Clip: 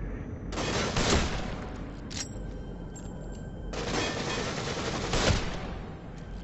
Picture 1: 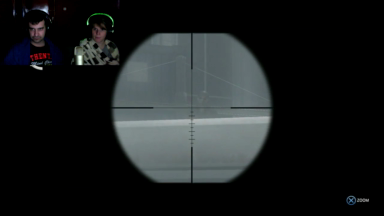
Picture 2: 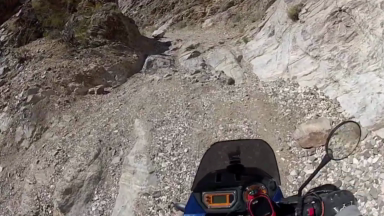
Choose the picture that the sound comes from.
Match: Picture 1